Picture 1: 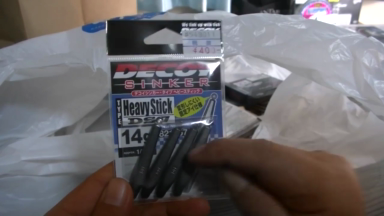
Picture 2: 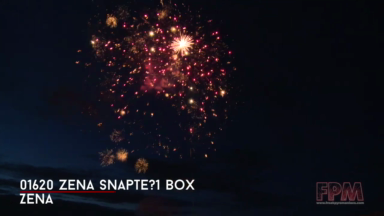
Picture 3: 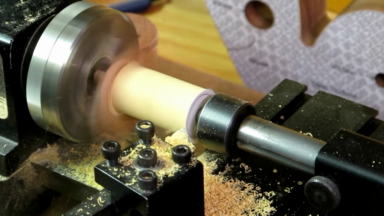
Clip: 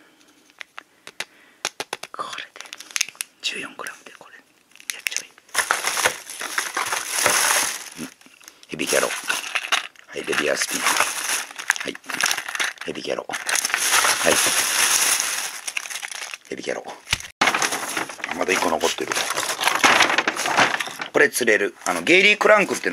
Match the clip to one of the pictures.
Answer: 1